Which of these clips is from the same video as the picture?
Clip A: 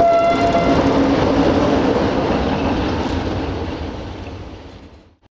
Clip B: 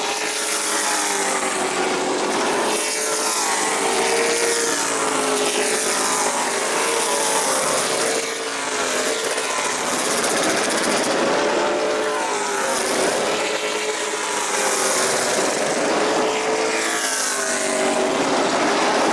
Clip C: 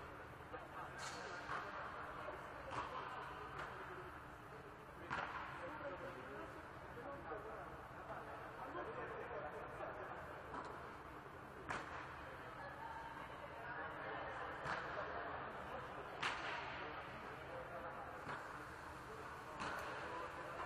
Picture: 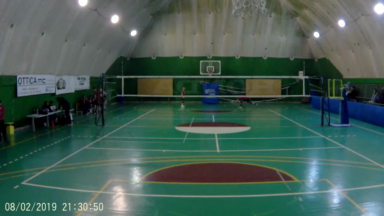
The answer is C